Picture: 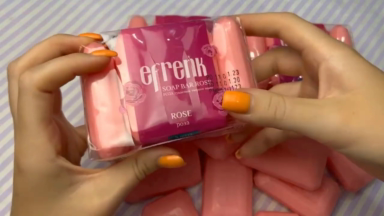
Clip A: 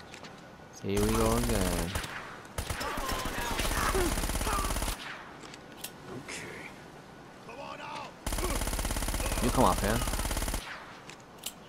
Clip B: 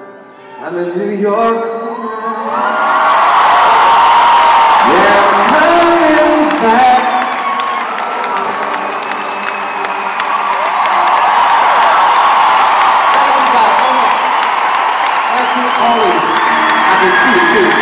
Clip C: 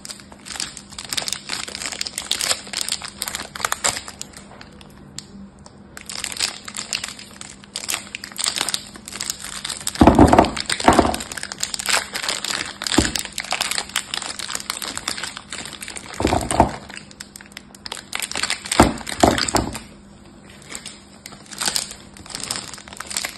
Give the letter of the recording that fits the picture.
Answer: C